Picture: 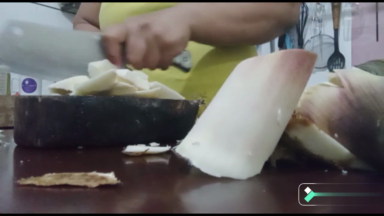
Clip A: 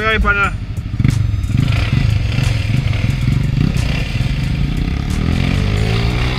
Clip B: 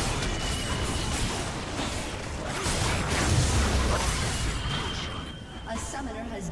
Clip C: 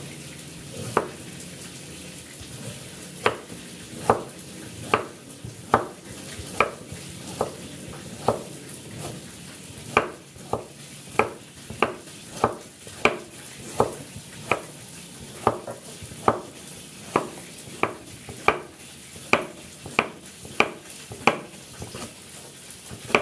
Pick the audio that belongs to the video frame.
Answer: C